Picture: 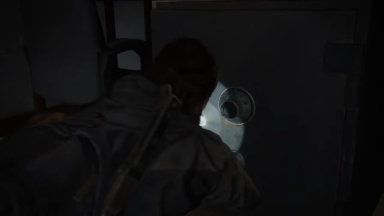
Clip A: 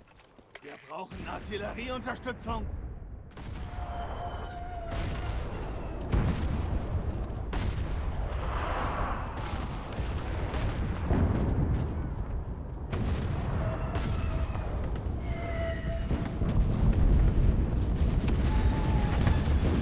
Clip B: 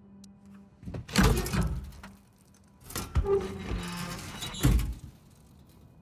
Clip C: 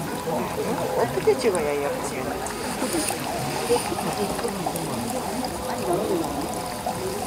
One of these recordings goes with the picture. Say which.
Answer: B